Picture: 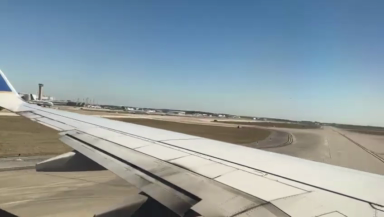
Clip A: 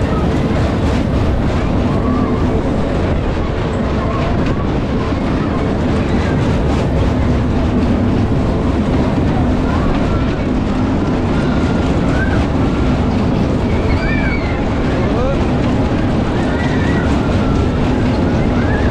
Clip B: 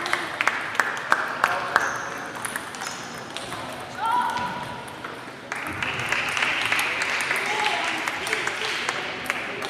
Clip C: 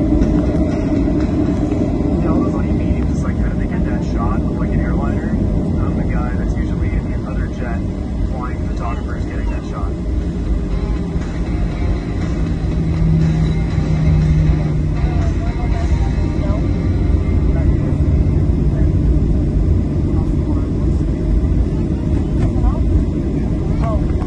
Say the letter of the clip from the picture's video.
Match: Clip C